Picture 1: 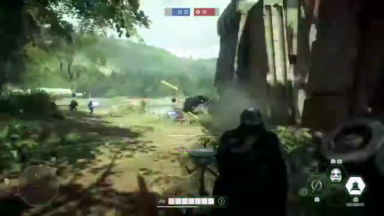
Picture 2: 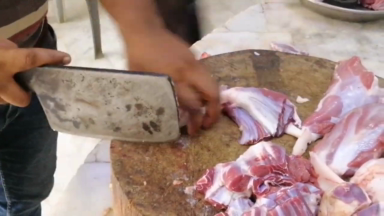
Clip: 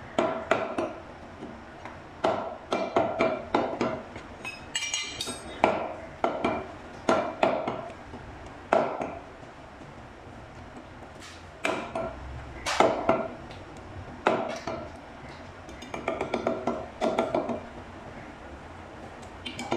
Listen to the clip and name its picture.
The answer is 2